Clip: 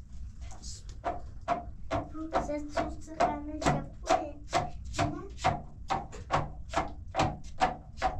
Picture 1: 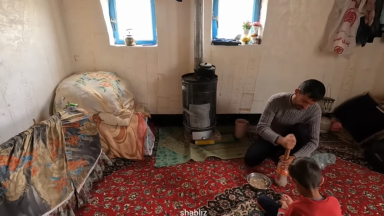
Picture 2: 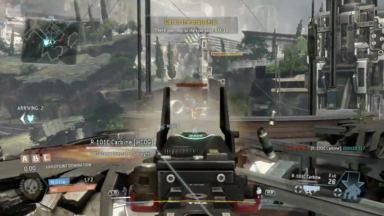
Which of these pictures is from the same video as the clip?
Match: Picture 1